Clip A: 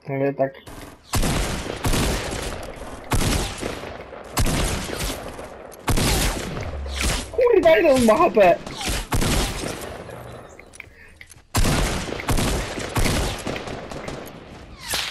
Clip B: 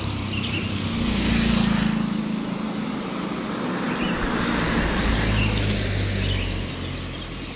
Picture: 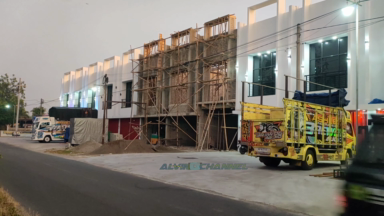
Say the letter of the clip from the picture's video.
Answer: B